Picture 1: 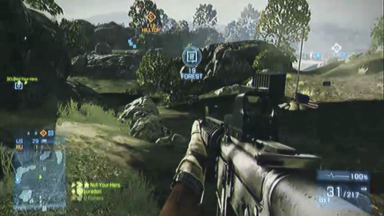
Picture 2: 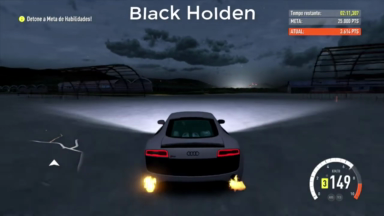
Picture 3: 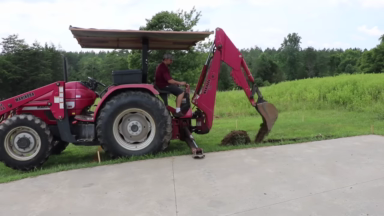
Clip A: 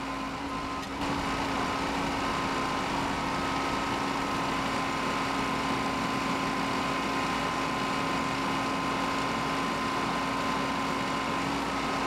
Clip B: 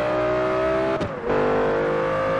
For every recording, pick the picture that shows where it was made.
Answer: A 3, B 2